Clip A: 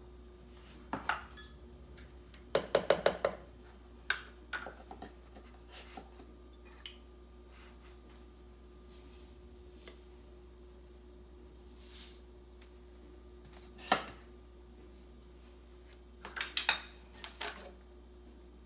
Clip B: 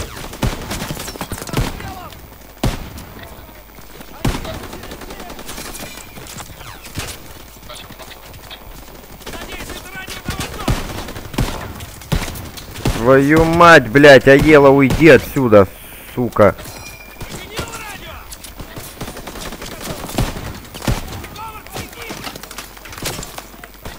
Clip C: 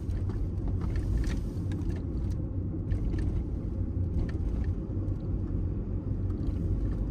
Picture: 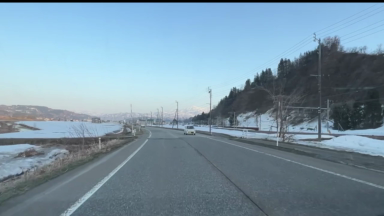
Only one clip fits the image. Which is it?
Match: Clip C